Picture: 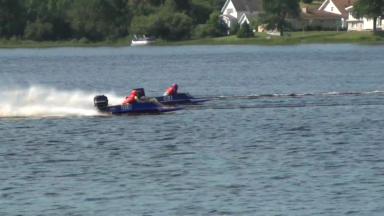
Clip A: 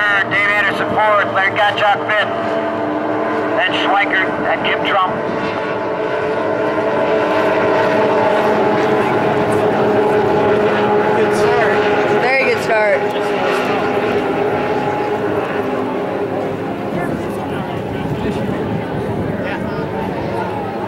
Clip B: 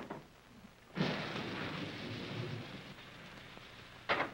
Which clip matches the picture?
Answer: A